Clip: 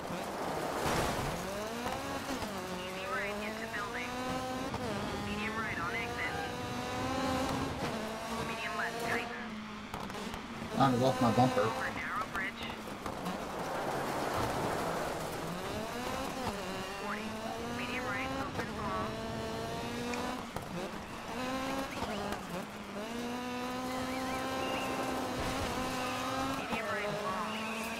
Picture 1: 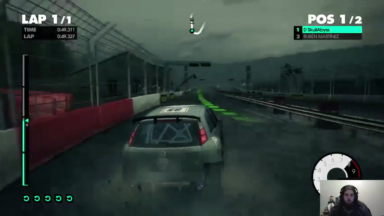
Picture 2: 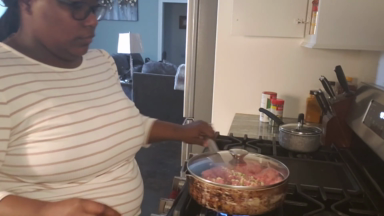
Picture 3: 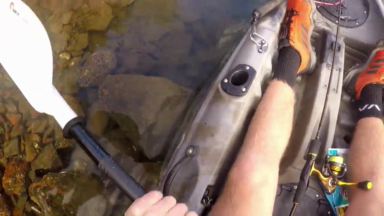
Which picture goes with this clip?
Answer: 1